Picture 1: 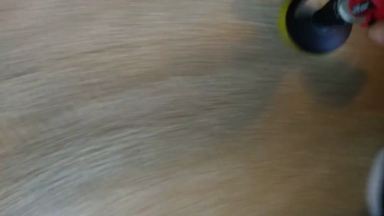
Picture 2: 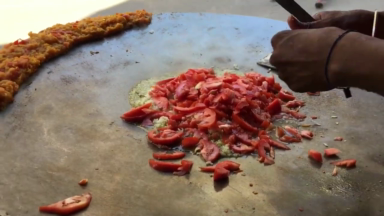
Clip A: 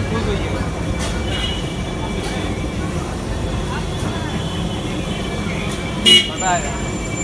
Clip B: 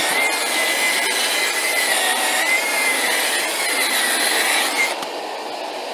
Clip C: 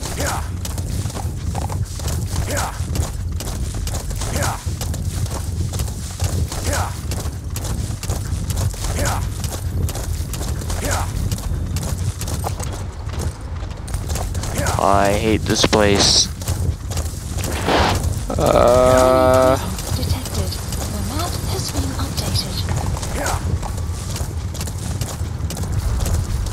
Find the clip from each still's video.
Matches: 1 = B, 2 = A